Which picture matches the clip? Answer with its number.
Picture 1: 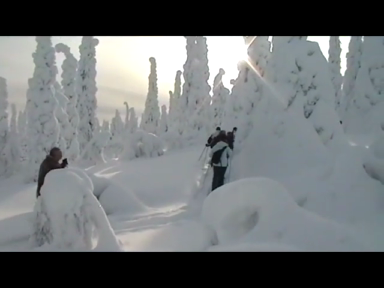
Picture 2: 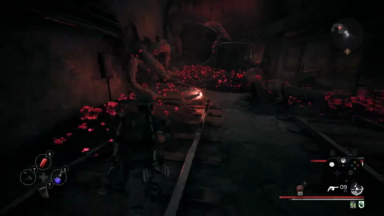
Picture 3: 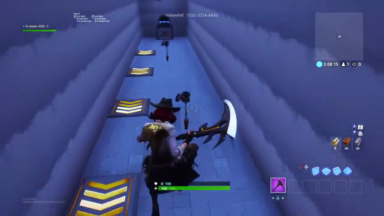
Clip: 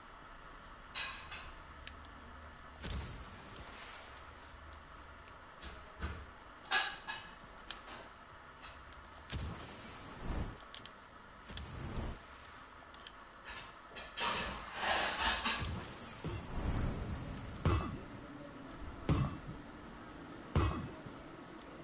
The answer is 3